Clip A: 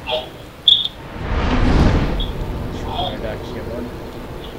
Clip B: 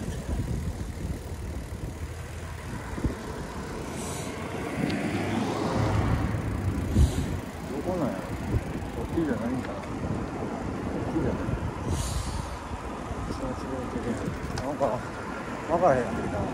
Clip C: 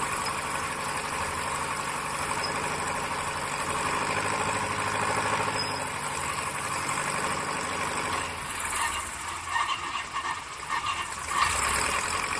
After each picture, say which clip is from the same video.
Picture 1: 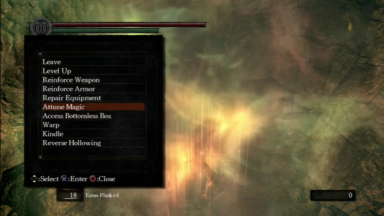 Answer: A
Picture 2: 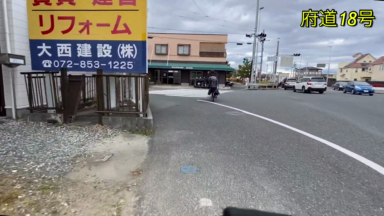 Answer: B